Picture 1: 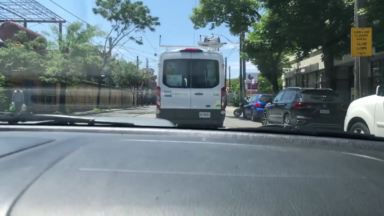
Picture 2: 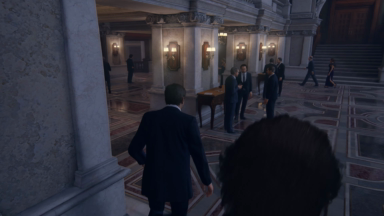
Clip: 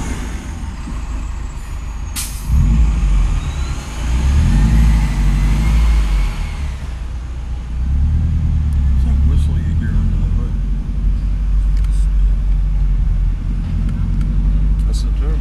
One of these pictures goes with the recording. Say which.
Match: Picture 1